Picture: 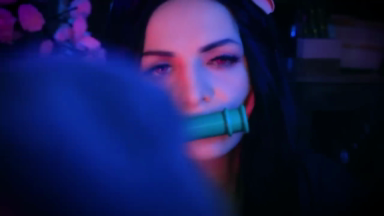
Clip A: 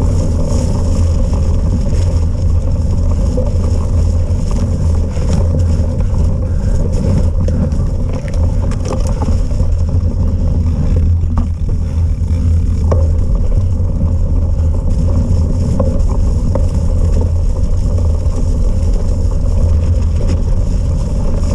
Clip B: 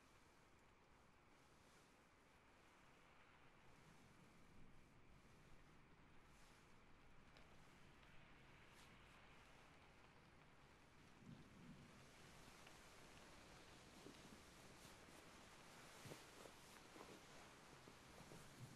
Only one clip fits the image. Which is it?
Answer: B